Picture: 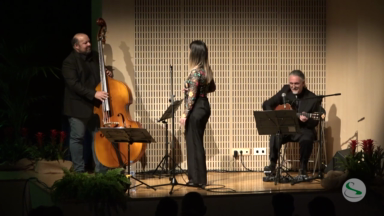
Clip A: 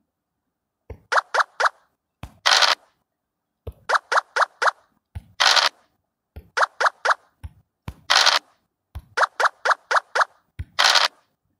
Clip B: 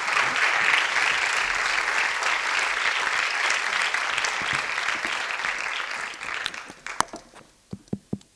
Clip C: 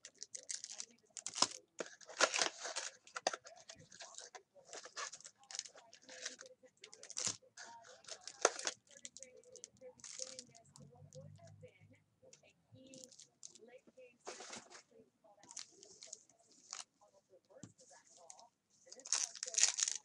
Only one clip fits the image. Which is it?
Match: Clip B